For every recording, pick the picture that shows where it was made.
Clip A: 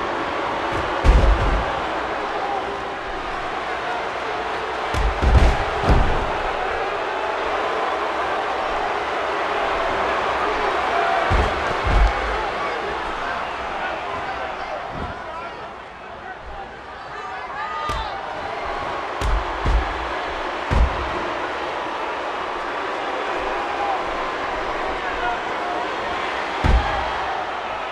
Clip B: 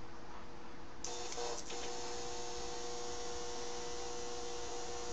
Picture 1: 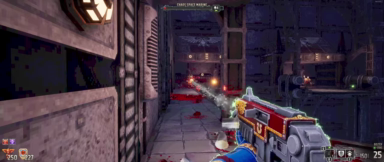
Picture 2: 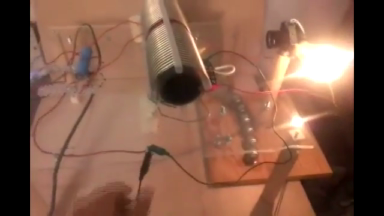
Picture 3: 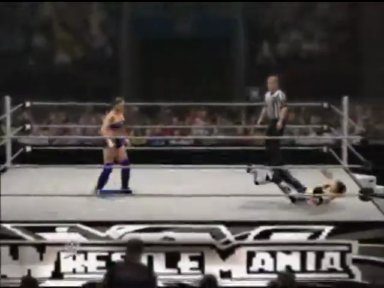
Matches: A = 3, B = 2